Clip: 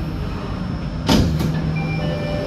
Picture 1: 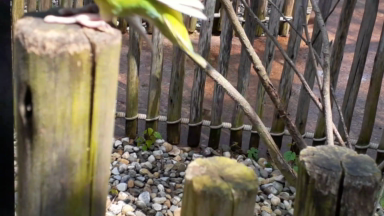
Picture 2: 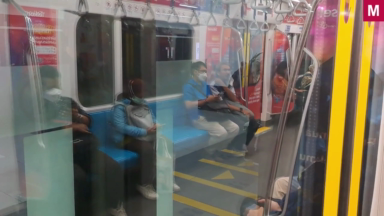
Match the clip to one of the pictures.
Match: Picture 2